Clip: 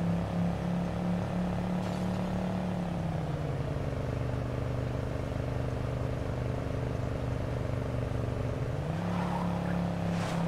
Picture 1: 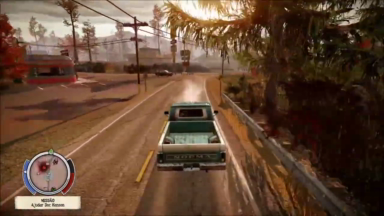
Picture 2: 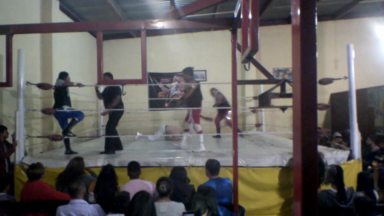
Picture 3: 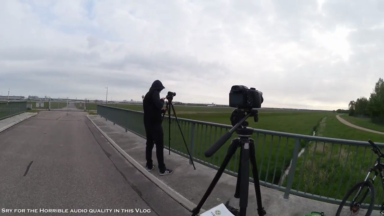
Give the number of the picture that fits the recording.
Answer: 1